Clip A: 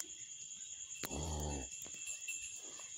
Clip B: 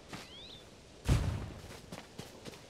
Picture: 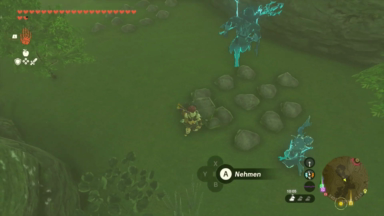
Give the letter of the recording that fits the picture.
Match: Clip B